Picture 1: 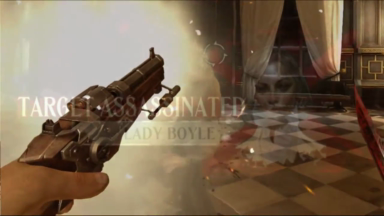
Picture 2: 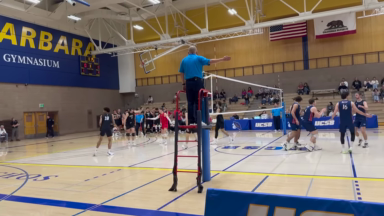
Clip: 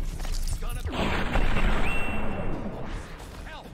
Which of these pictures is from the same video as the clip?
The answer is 1